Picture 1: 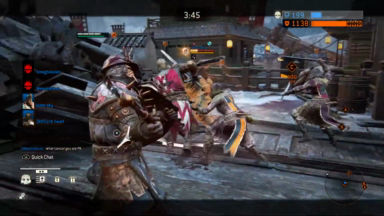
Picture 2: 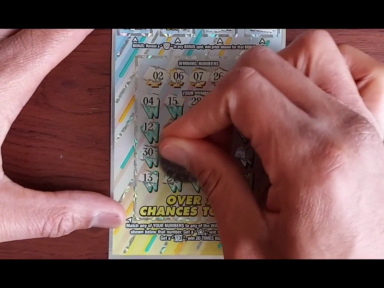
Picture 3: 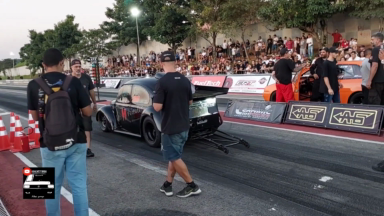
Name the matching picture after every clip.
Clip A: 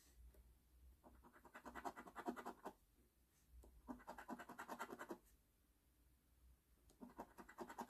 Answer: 2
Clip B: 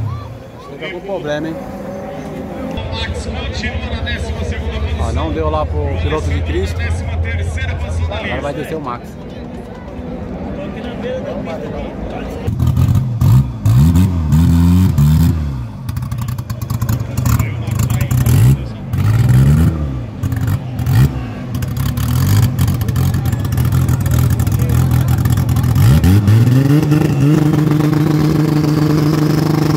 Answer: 3